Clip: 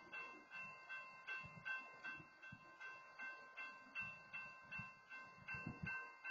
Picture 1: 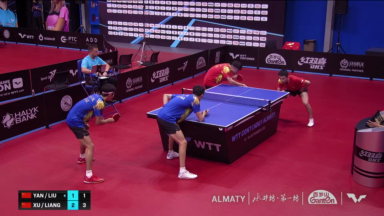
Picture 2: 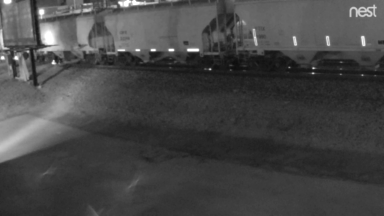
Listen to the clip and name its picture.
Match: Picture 2